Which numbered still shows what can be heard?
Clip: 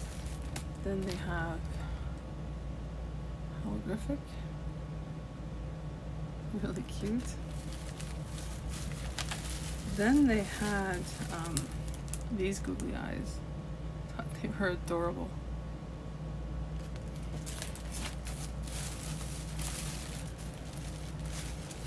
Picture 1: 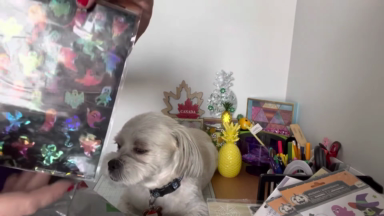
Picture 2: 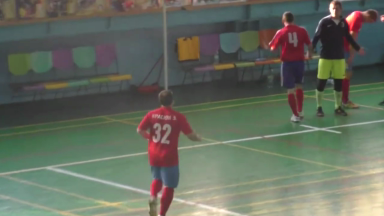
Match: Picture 1